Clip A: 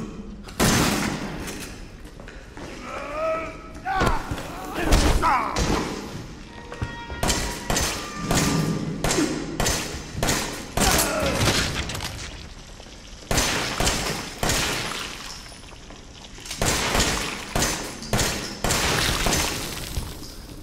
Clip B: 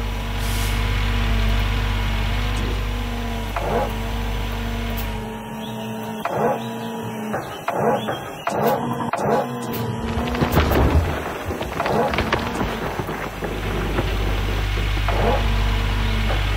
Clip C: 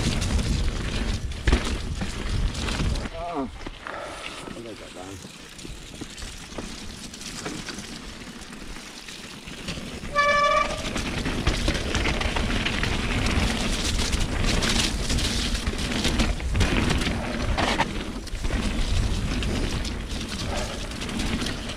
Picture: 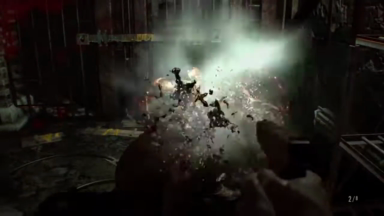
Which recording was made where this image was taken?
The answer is A